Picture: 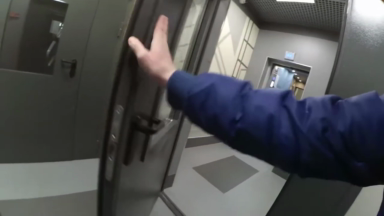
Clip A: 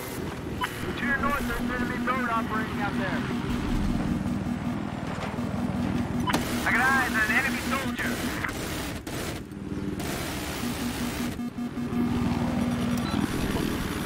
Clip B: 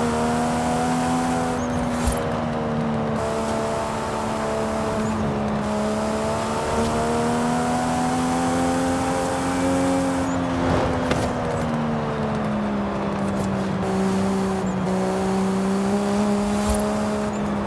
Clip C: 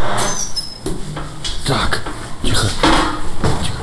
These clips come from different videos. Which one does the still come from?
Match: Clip C